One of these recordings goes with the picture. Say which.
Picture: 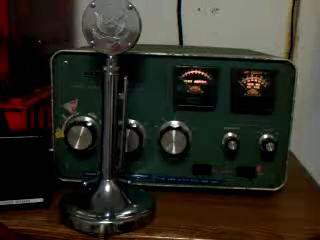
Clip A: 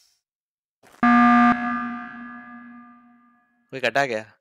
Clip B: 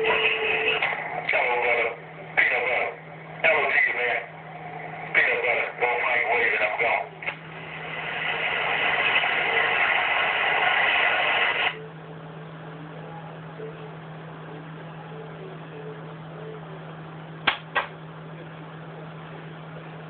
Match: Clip B